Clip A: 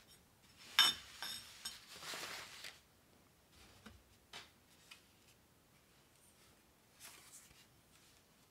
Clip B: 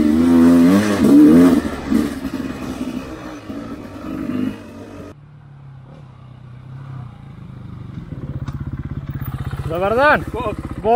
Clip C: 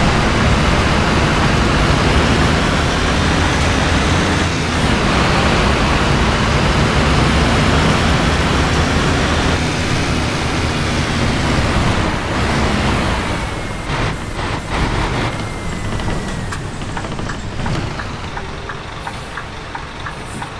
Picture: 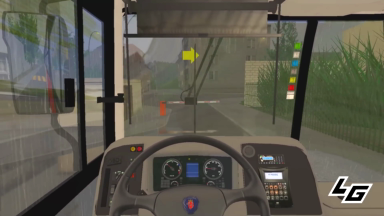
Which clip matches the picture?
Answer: C